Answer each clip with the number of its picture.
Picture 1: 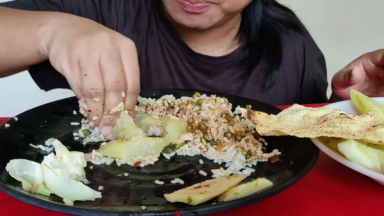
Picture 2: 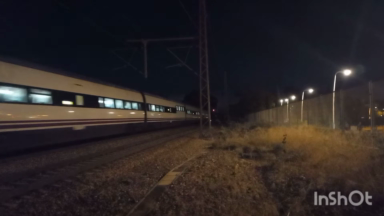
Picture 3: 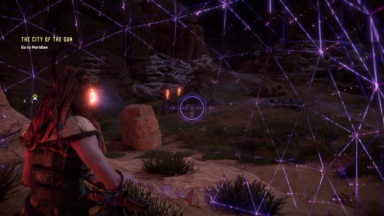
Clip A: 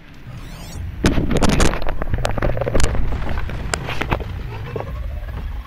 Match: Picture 3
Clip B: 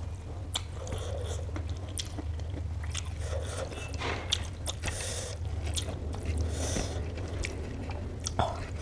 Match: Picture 1